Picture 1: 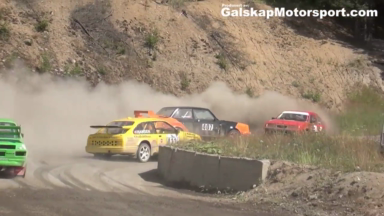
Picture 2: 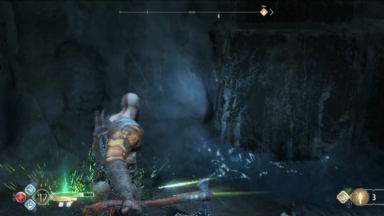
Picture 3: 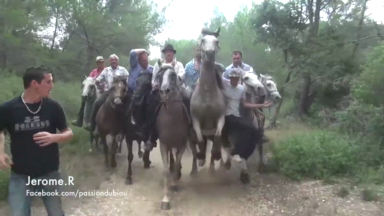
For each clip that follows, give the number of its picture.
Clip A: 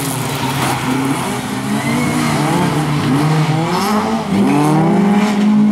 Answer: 1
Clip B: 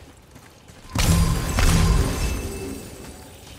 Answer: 2